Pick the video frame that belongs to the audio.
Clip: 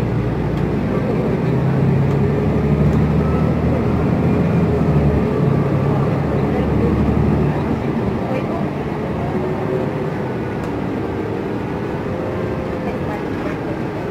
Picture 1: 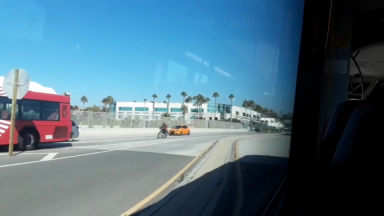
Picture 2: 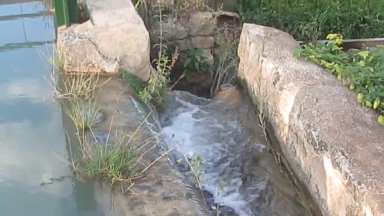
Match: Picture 1